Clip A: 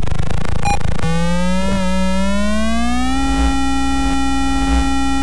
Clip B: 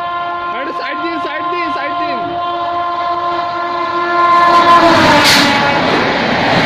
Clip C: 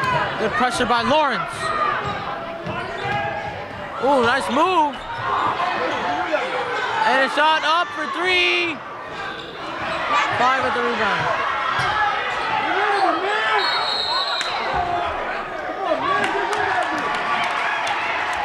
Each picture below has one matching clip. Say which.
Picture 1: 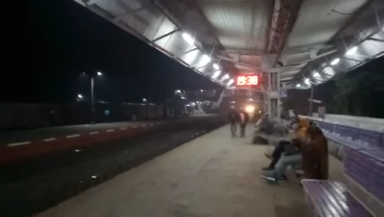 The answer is B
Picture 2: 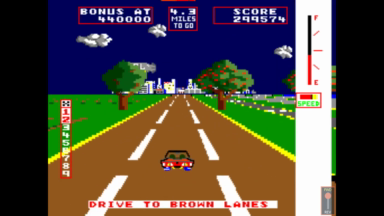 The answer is A